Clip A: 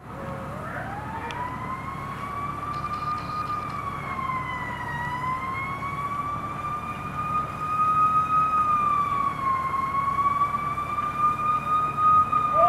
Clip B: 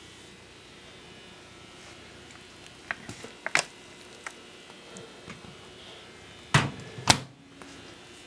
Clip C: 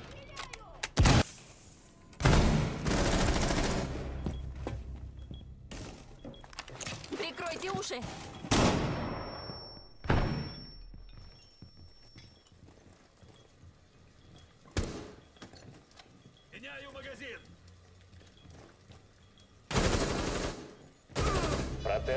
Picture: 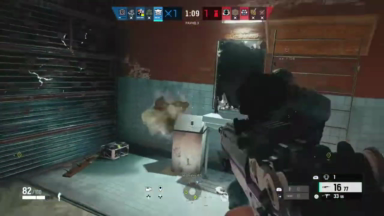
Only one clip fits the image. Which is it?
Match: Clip C